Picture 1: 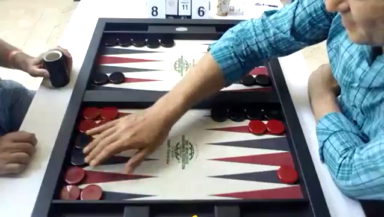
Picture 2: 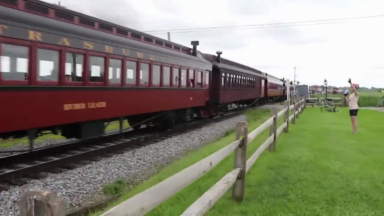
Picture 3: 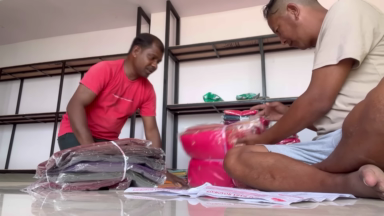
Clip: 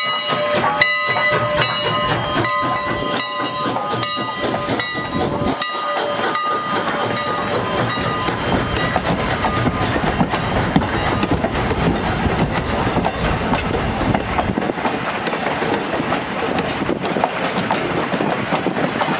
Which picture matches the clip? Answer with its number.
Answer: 2